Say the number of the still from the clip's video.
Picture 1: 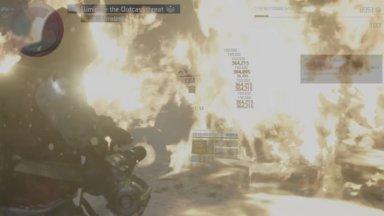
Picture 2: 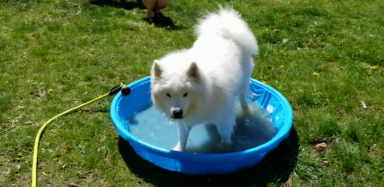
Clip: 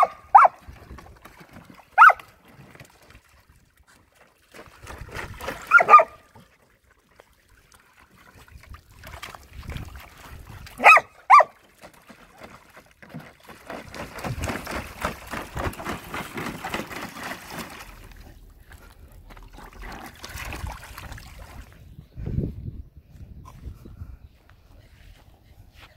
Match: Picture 2